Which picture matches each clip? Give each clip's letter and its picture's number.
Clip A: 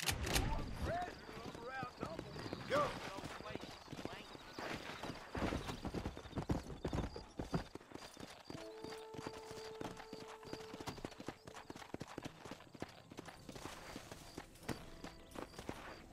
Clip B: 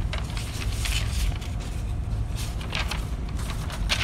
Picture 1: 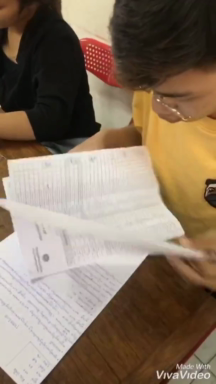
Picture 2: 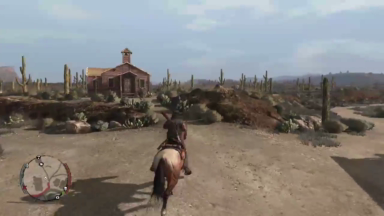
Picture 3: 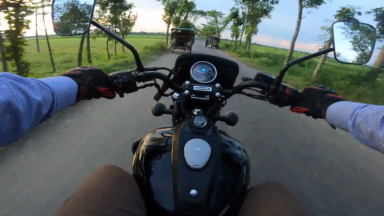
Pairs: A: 2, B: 1